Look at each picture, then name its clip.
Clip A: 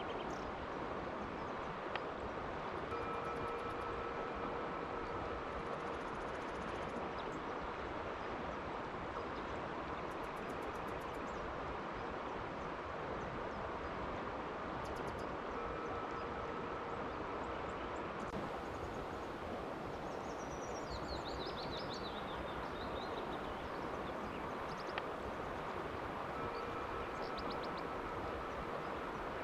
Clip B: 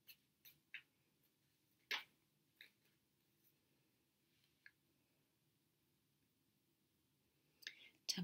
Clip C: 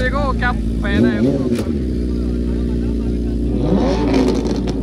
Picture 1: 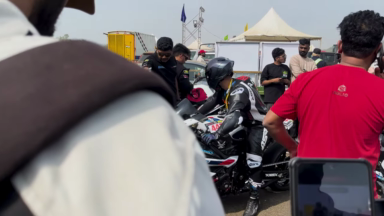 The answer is C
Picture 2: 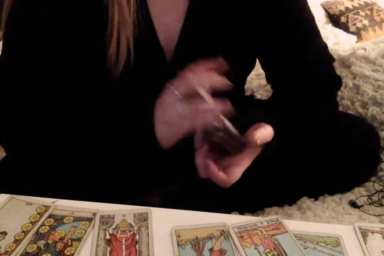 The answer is B